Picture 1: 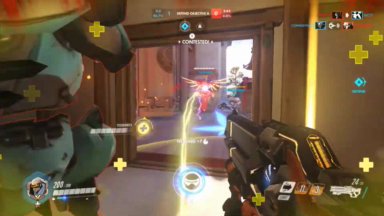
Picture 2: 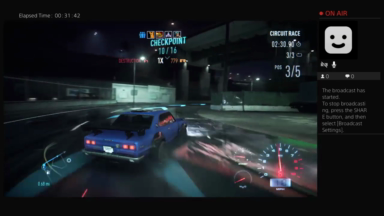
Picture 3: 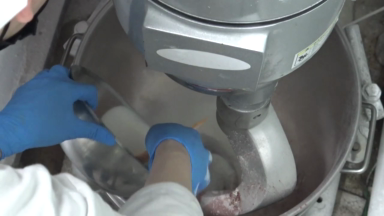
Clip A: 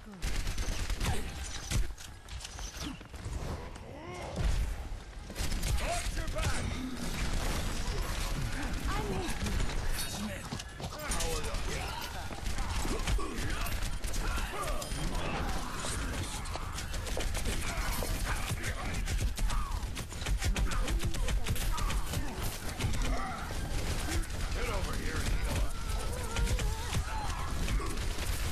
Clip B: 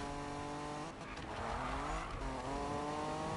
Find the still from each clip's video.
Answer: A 1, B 2